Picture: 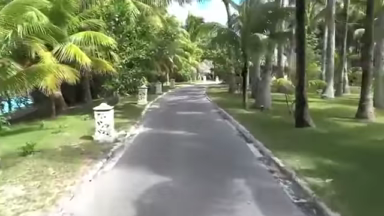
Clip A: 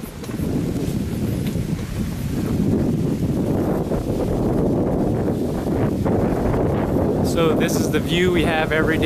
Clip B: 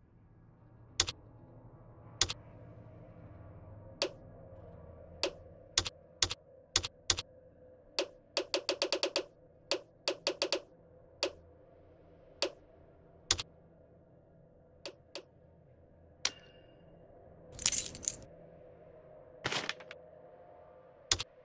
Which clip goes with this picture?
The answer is A